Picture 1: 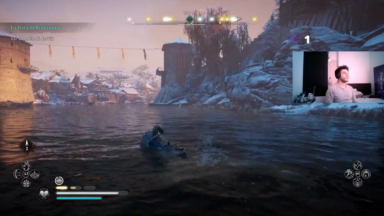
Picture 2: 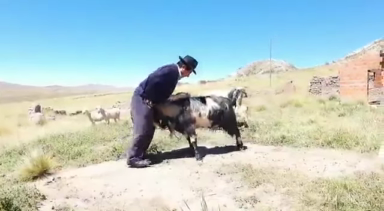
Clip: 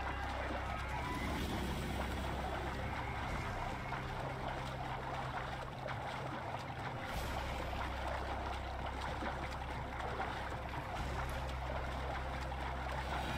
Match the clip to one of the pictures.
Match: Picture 1